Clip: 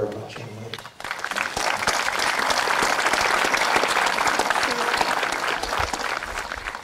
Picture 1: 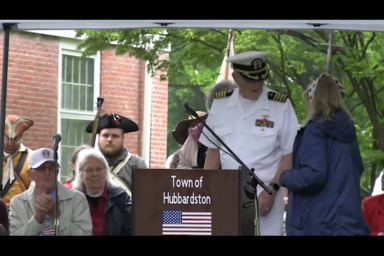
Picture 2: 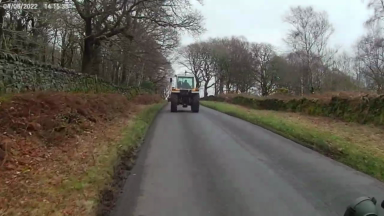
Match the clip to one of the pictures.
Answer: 1